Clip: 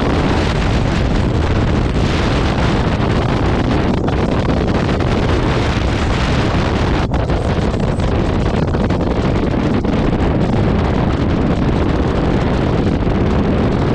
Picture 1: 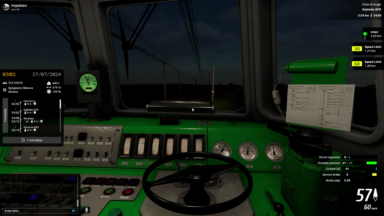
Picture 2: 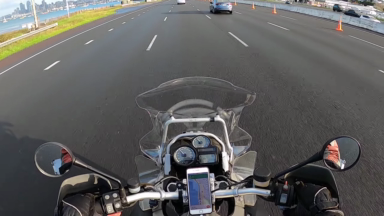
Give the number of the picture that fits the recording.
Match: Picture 2